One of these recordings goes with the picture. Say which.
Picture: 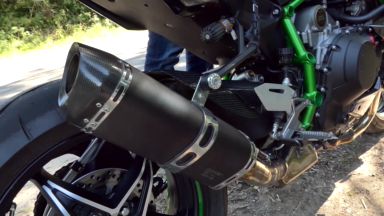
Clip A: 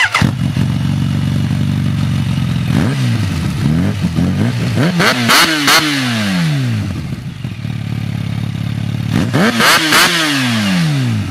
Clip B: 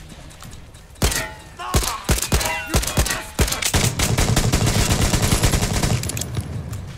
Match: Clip A